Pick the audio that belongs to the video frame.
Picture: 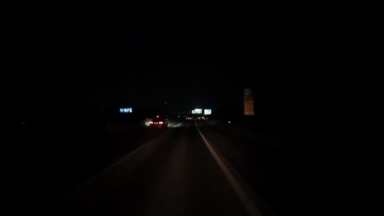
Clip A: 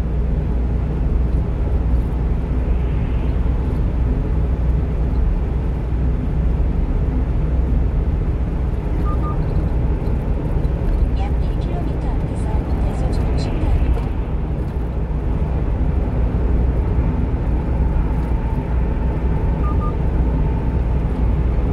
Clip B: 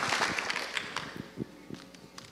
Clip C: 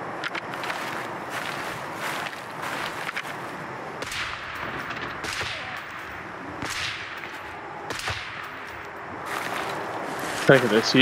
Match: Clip A